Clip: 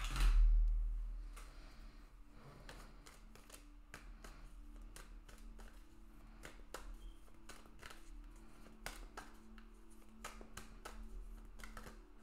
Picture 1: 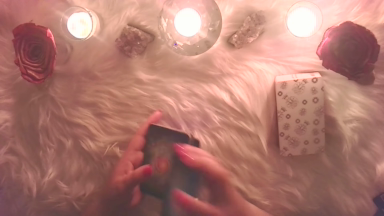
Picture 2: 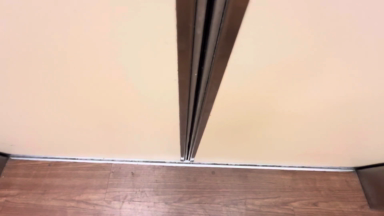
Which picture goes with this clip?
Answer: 1